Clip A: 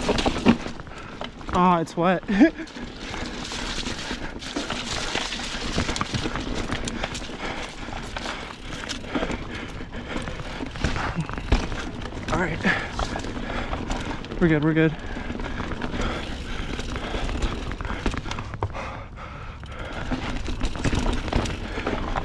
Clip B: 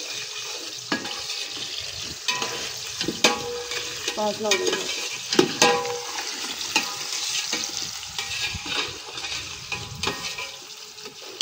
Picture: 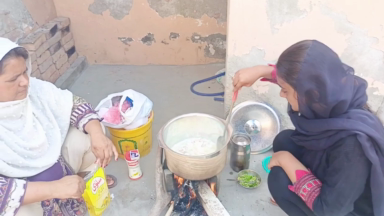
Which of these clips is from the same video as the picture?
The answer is B